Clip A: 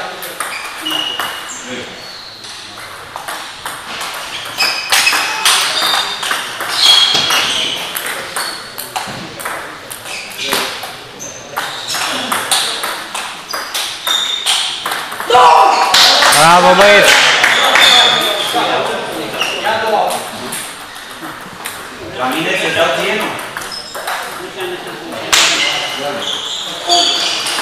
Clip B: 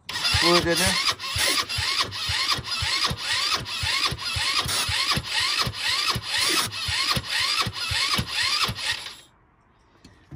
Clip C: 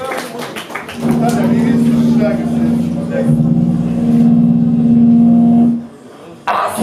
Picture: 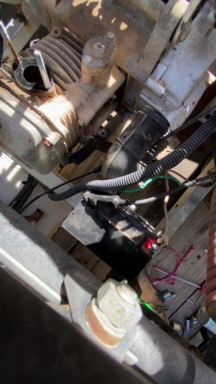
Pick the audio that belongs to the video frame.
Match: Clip B